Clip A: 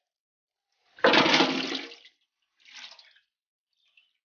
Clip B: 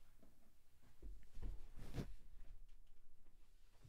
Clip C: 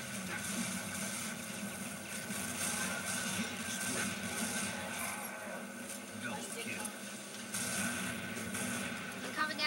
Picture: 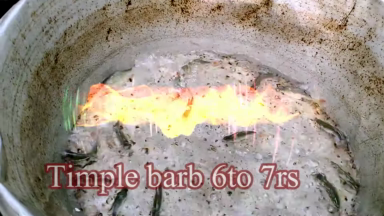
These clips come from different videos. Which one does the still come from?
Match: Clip A